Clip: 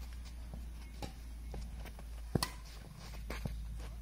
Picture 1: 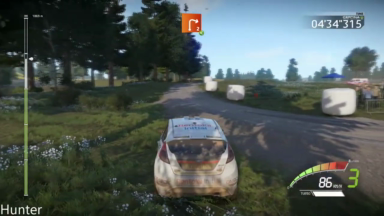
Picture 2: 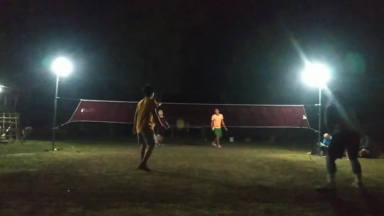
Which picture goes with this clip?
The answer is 2